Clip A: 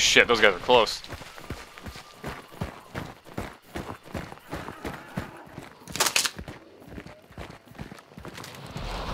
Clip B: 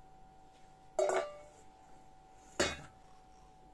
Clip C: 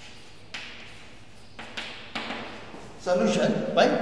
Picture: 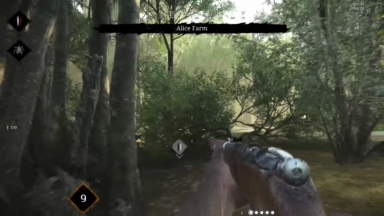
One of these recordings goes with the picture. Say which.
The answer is A